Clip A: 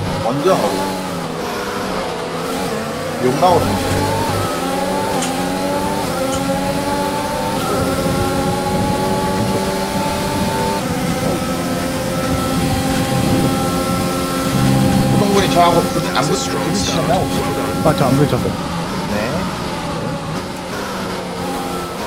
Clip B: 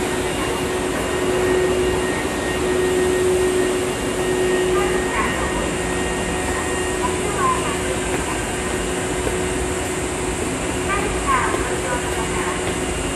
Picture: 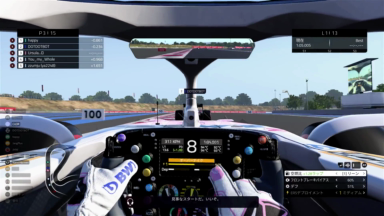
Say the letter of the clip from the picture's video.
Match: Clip A